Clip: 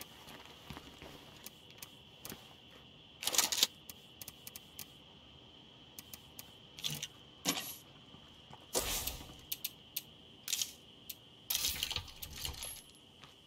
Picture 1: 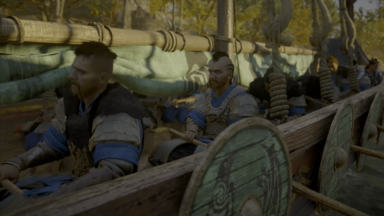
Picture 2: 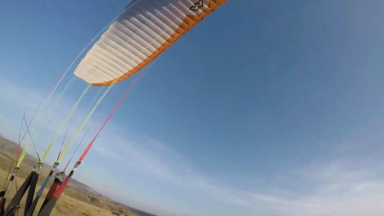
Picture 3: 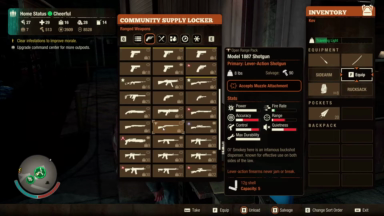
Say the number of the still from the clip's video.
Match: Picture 3